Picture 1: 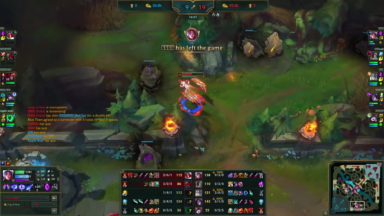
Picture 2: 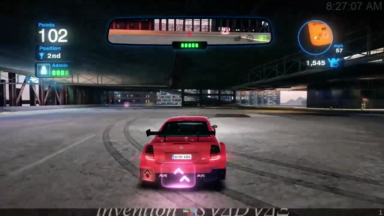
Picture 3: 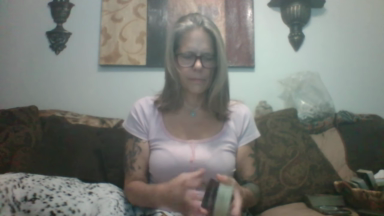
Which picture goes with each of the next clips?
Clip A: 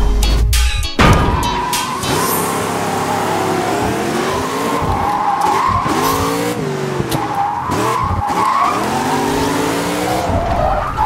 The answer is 2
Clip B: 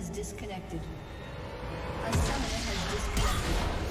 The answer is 1